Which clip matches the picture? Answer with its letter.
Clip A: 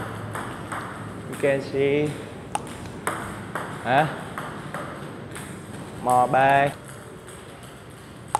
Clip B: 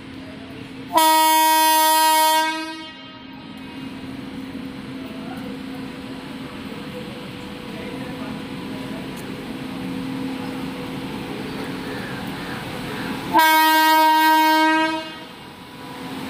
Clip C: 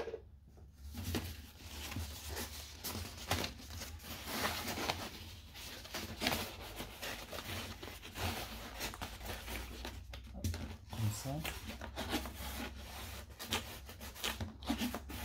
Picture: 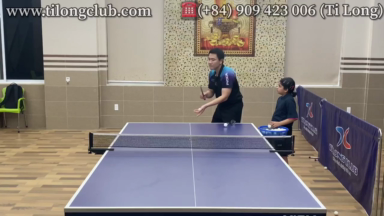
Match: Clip A